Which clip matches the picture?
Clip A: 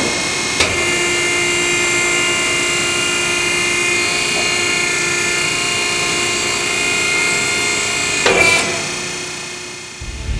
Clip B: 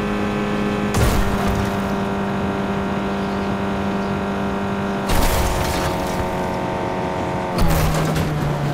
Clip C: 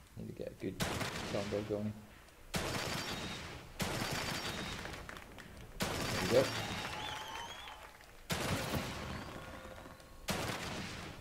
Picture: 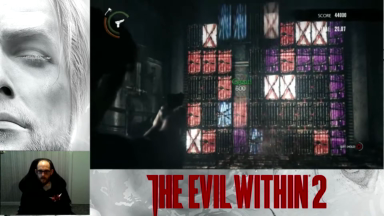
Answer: C